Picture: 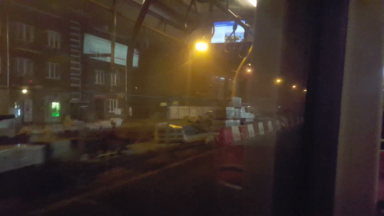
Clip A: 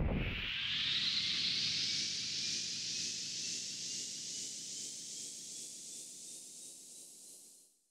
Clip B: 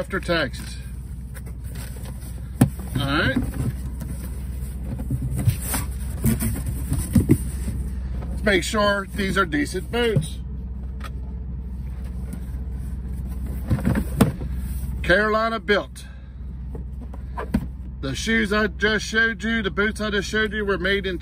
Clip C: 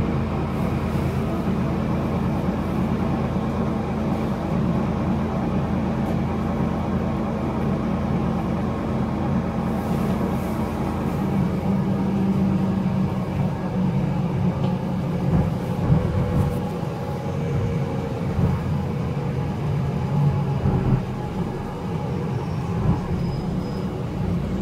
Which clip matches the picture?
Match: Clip C